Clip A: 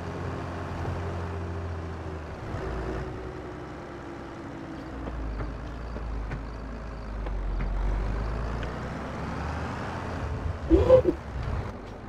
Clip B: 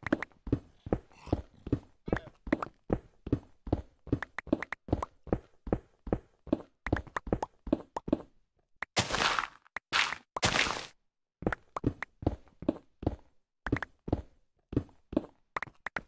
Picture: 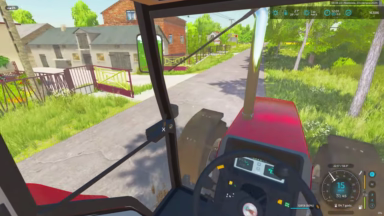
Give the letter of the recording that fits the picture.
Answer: A